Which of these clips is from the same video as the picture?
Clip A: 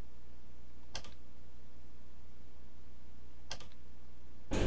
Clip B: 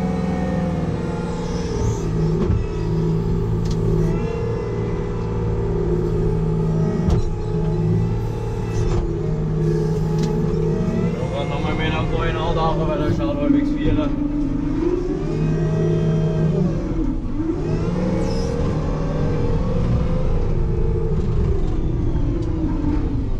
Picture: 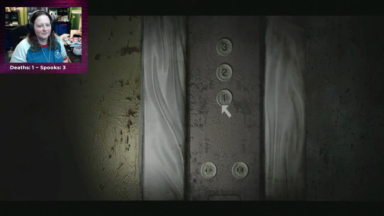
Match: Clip A